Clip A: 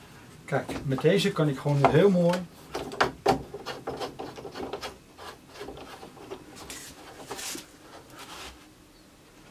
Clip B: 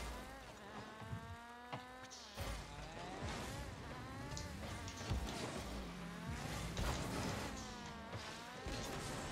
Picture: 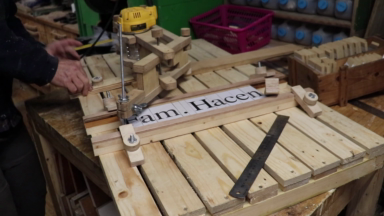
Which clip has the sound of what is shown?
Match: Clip A